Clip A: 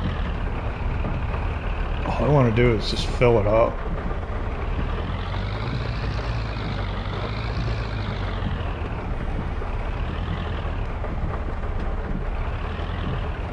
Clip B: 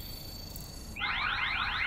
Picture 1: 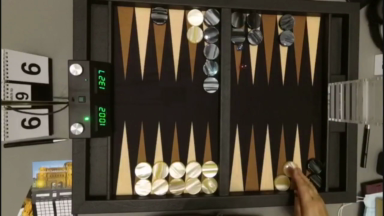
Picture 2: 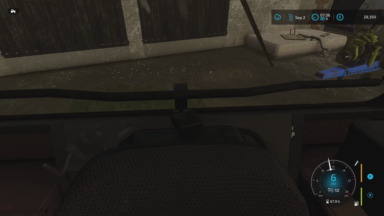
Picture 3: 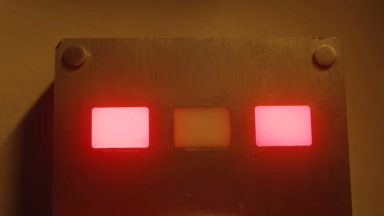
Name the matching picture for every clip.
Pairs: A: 2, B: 3